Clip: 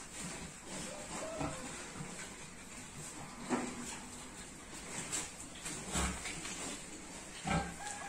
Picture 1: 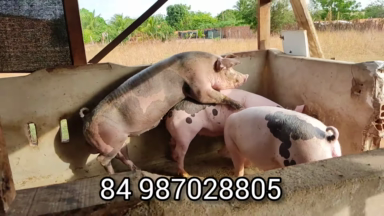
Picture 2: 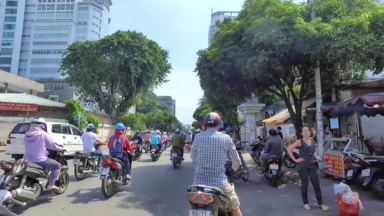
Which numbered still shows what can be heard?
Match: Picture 1